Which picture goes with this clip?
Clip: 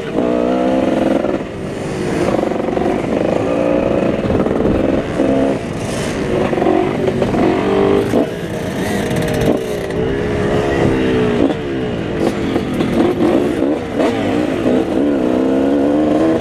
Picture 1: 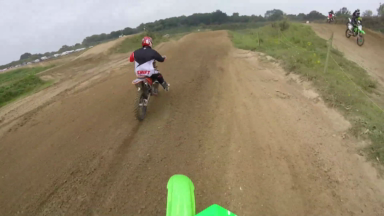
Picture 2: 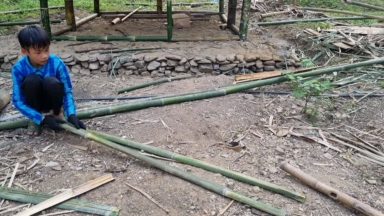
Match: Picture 1